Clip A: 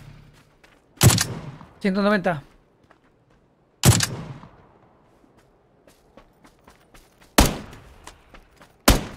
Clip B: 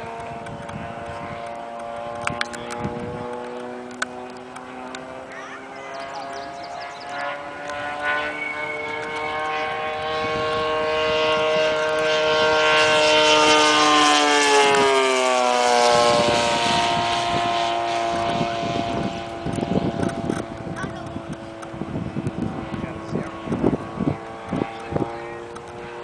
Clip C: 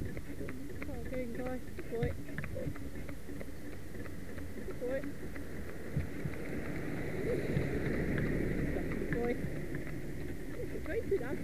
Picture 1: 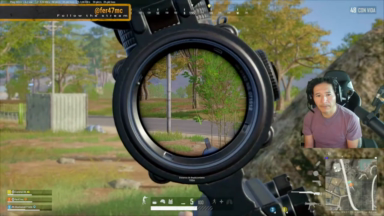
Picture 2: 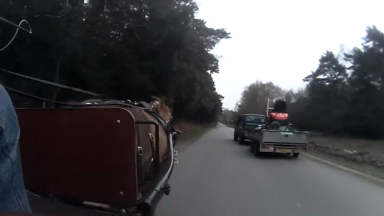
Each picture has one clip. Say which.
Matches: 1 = A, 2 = C